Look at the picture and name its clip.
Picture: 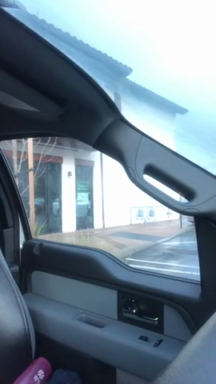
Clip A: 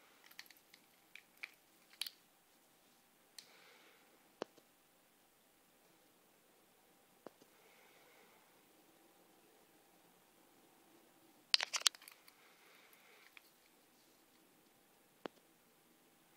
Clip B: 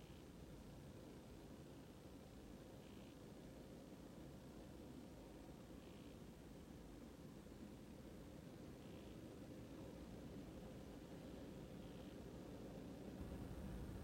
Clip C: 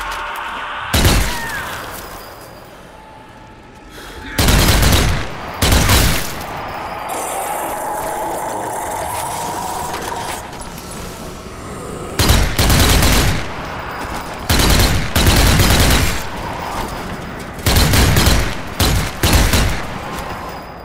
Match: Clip B